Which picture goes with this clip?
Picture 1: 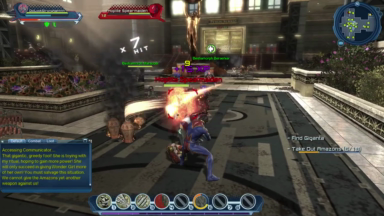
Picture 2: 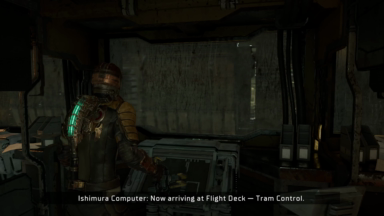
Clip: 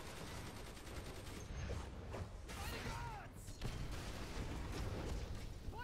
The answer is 1